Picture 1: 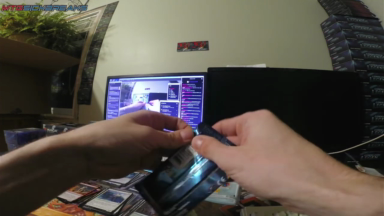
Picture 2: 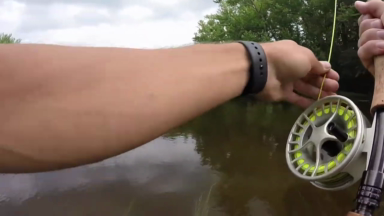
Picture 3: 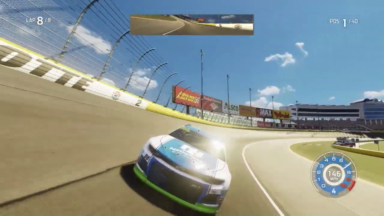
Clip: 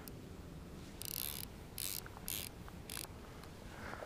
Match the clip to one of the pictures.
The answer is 2